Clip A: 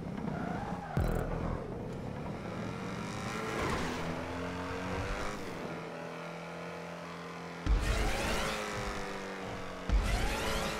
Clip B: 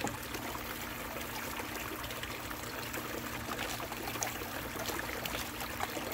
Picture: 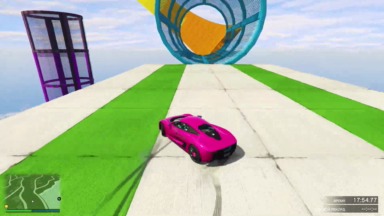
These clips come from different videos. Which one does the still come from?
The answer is A